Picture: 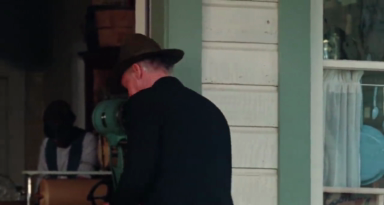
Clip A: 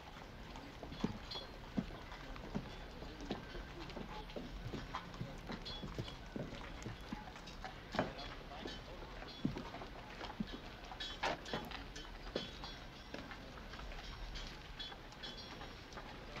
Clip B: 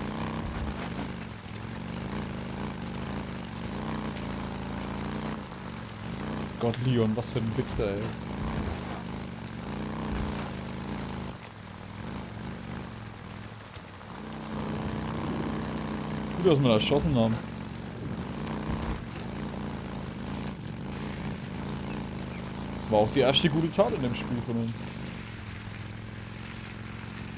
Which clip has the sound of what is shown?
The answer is A